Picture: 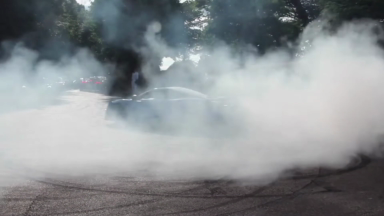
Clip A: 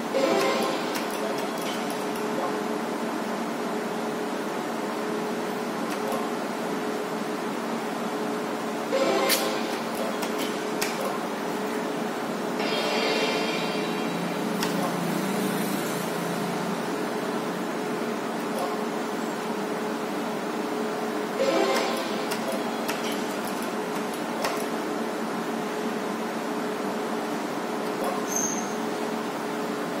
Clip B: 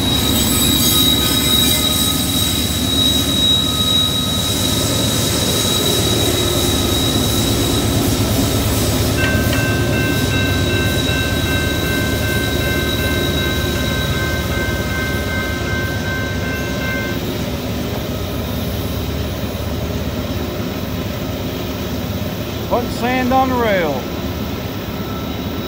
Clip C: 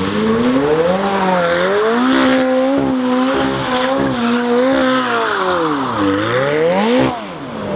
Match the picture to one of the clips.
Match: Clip C